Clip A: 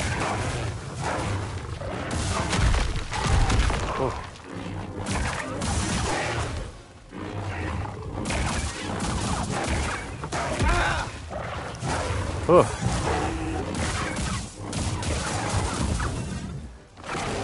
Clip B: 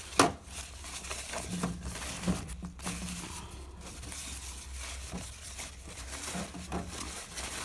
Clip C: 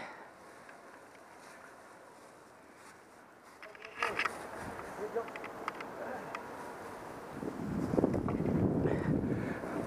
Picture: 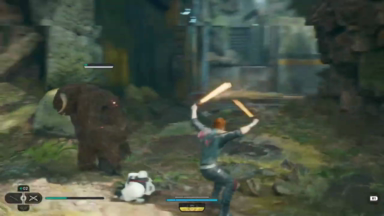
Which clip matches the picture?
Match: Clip A